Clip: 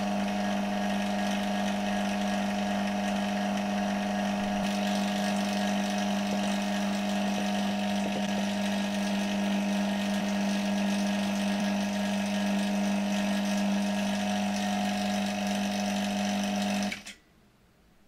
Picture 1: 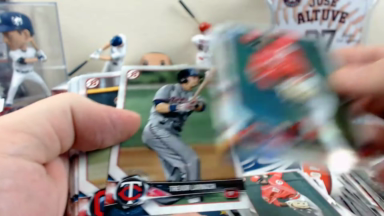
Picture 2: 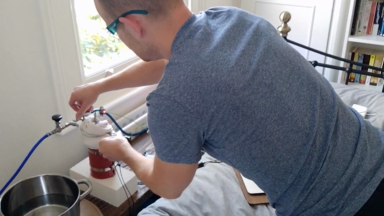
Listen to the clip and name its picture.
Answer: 2